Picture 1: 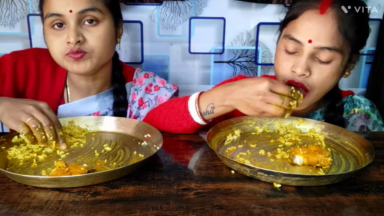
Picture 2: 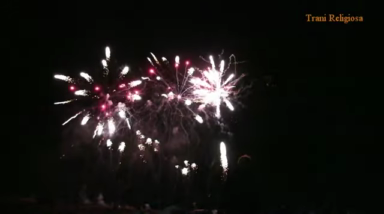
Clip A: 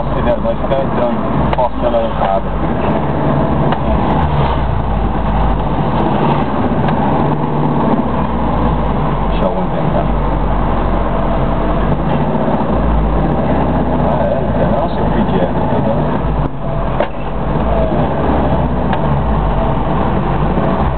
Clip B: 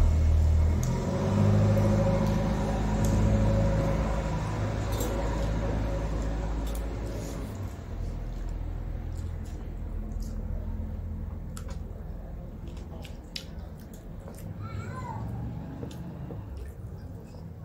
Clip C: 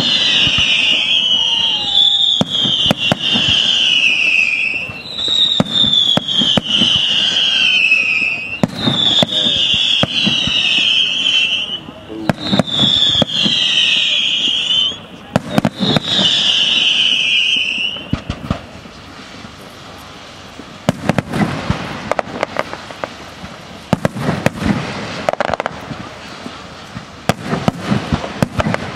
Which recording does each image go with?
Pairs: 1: B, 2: C